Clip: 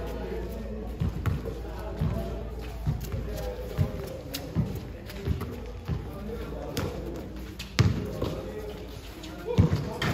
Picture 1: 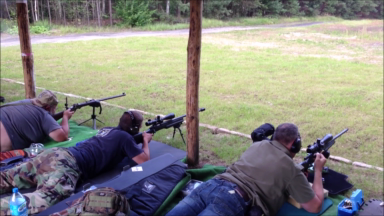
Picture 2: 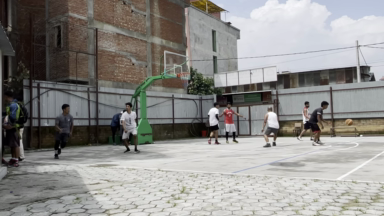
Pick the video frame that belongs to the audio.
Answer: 2